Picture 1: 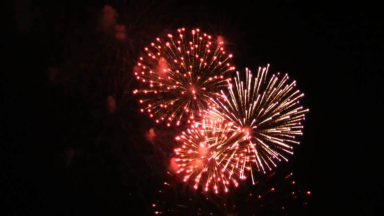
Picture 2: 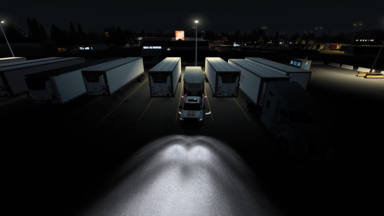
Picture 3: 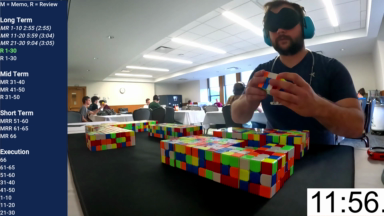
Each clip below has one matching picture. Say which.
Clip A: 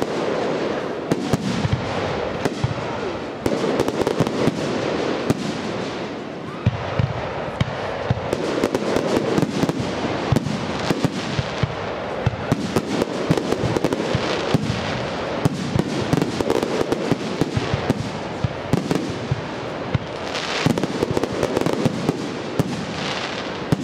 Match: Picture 1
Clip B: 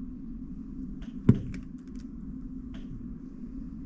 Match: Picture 3